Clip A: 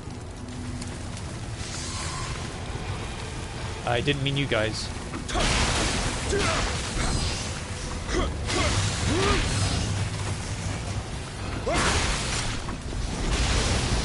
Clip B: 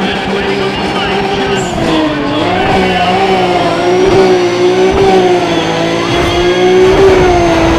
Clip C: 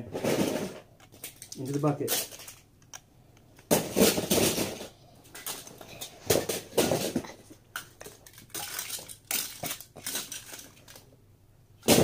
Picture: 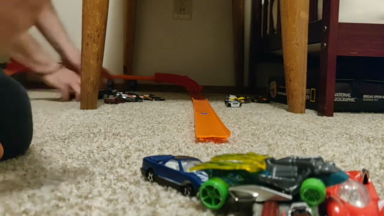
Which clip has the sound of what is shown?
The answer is C